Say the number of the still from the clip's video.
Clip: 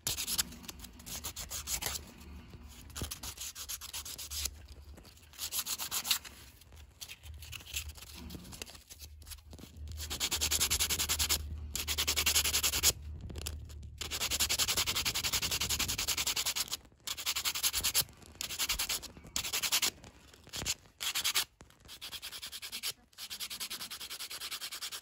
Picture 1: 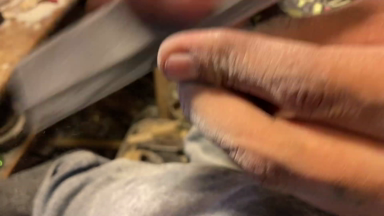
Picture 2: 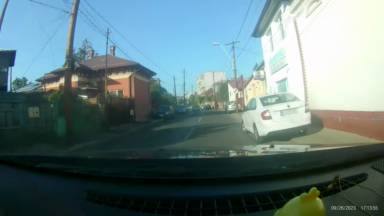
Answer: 1